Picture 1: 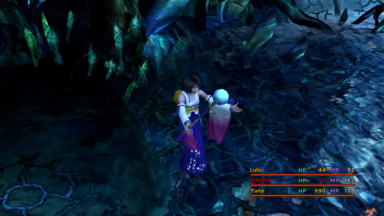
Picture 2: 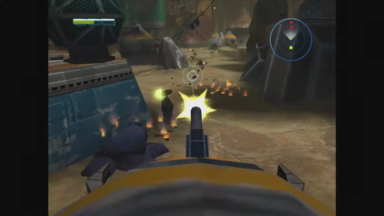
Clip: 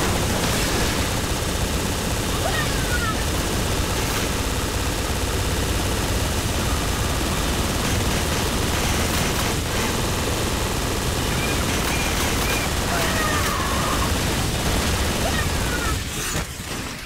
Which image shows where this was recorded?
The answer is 2